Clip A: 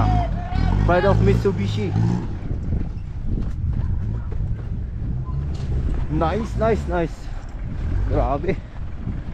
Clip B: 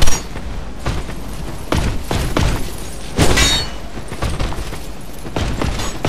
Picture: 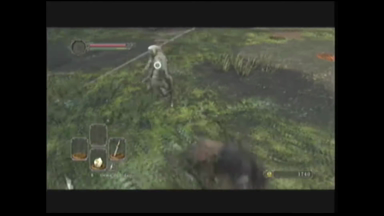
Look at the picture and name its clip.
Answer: B